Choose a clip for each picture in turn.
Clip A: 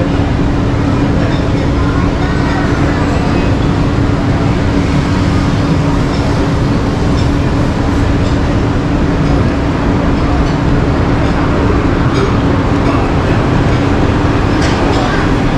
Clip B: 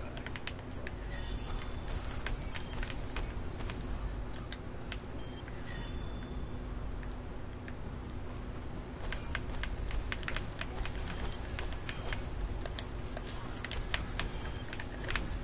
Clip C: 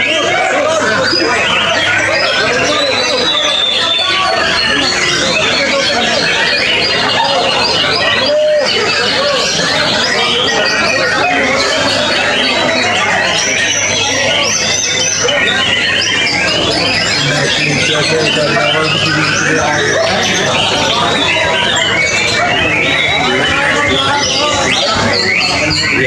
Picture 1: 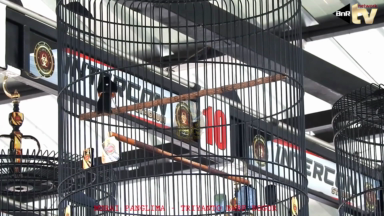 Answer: C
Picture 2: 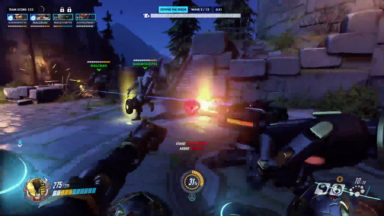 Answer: B